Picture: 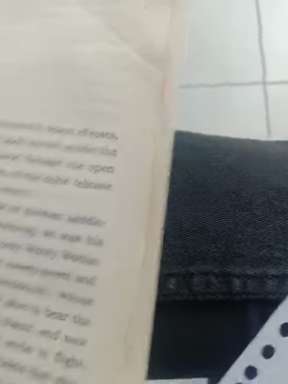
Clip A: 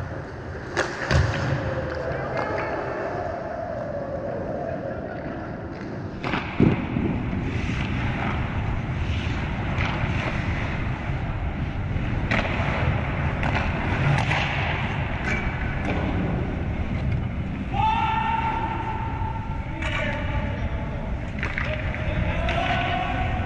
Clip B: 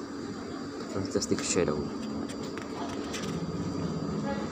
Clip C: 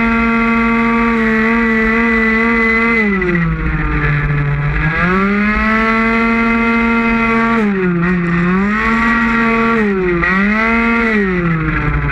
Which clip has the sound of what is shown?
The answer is B